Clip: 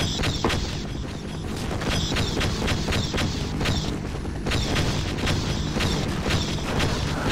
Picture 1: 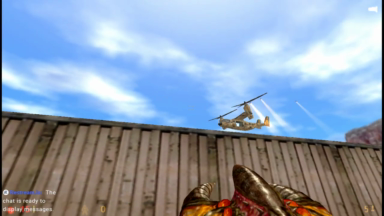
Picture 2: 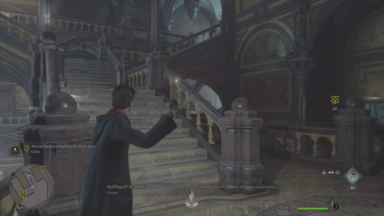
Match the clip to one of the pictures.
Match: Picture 1